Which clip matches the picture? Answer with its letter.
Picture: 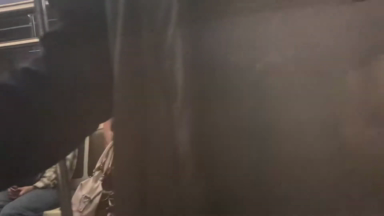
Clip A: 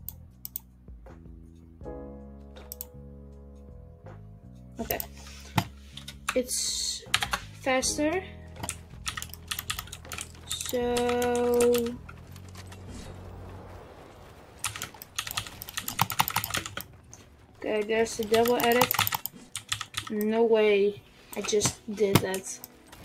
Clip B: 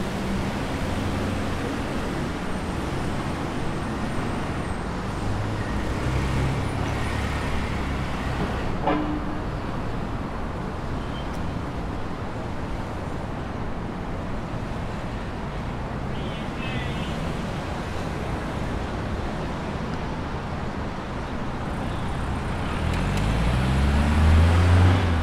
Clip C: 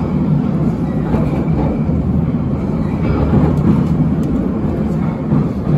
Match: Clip C